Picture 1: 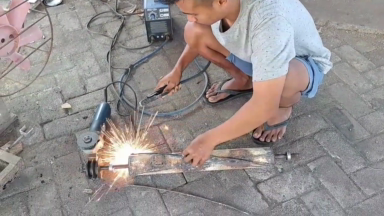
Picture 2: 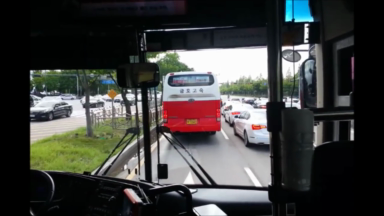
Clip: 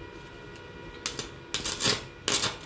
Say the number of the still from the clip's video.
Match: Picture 1